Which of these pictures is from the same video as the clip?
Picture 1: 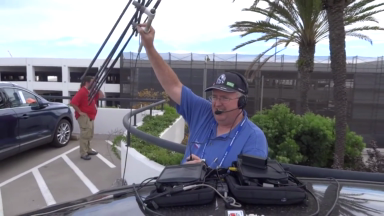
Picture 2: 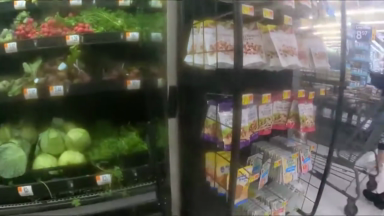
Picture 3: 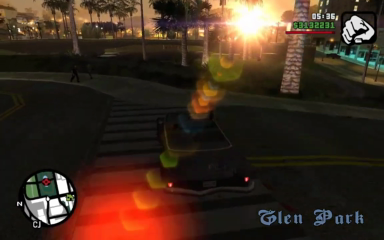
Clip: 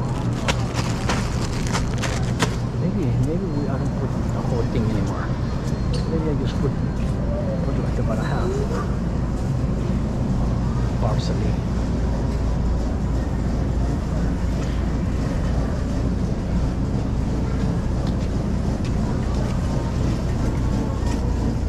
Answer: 2